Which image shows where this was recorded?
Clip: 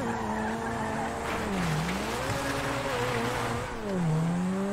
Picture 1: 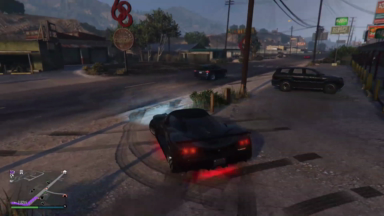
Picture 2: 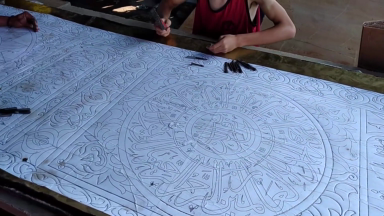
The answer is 1